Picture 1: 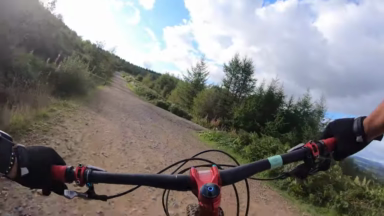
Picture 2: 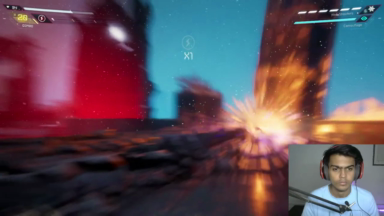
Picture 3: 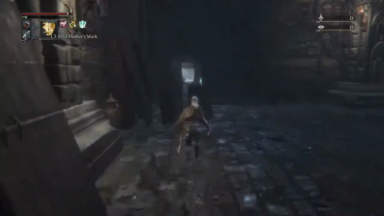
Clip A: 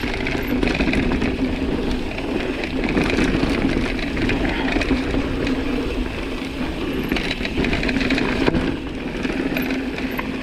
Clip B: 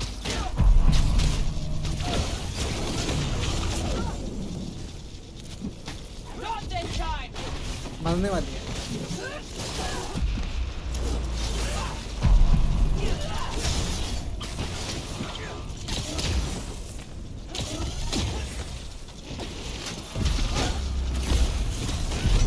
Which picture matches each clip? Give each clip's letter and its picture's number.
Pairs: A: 1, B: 2